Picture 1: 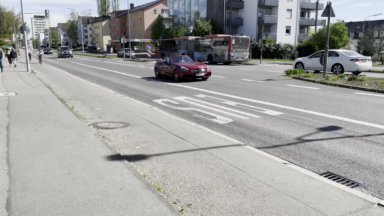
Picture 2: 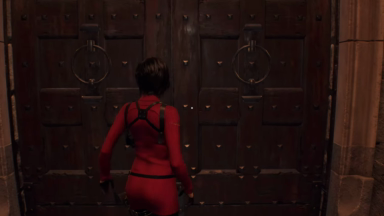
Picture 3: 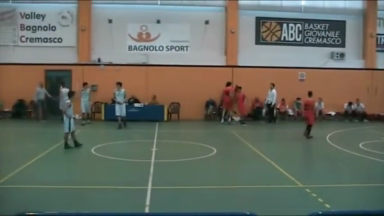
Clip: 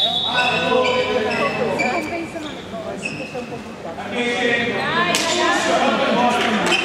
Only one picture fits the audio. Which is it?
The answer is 3